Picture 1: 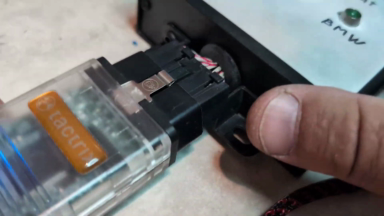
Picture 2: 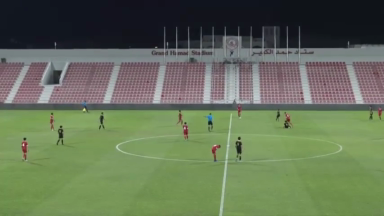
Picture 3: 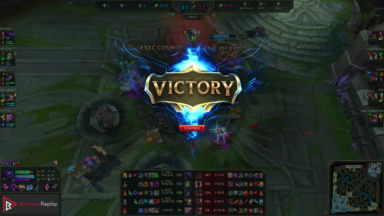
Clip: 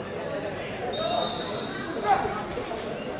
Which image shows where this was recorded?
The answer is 2